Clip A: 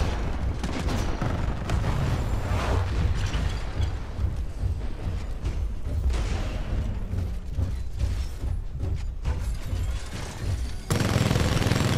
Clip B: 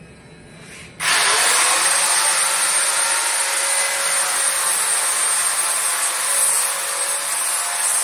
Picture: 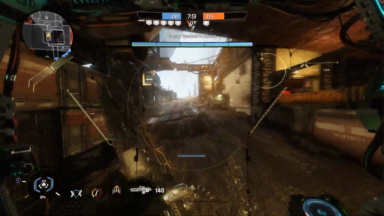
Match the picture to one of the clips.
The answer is A